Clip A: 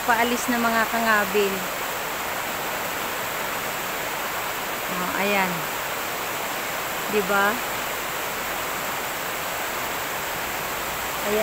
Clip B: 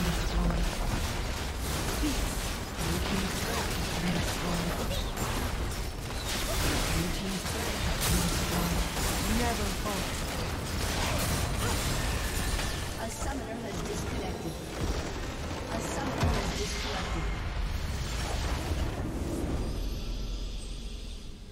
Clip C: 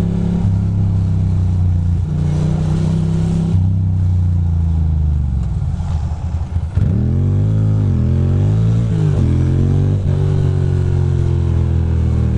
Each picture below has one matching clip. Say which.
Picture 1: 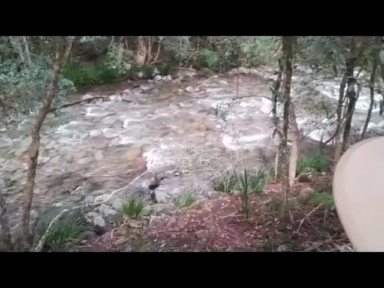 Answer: A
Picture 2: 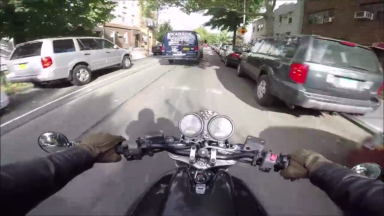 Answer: C